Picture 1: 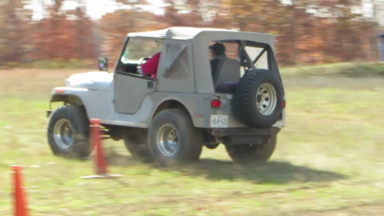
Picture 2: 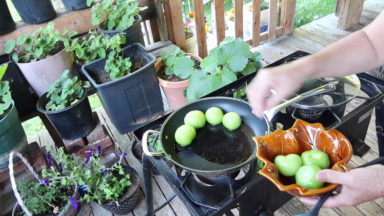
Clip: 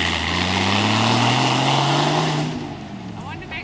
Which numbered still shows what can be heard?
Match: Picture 1